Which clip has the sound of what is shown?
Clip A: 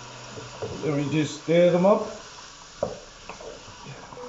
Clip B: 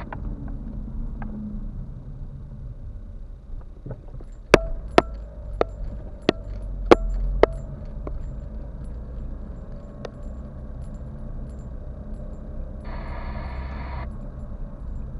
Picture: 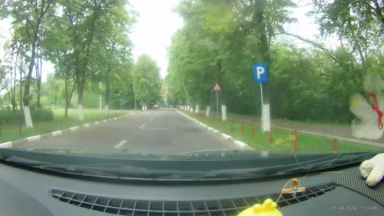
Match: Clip B